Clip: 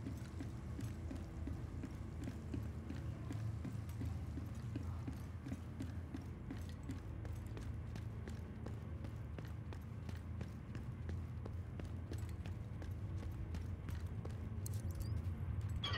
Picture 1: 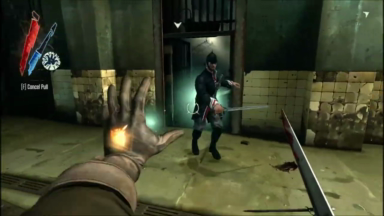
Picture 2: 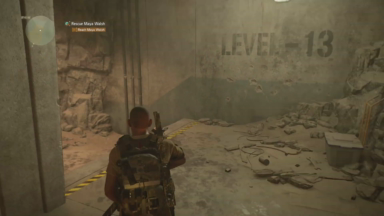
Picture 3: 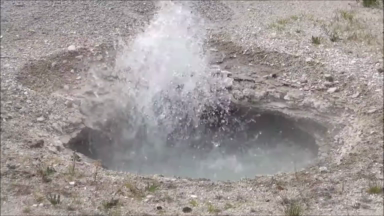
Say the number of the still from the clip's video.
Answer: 2